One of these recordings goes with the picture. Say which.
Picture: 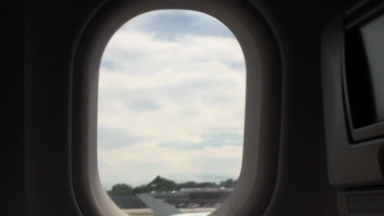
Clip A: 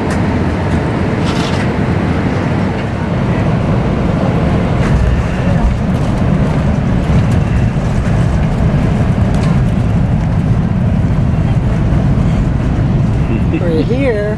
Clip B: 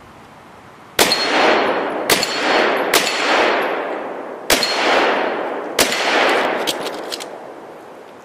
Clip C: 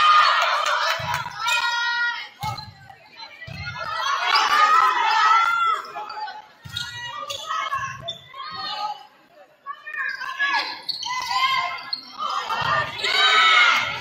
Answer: A